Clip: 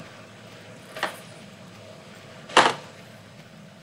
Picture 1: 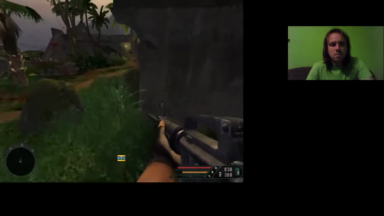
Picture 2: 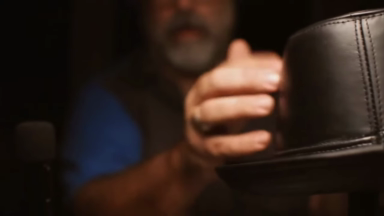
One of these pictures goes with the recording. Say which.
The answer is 1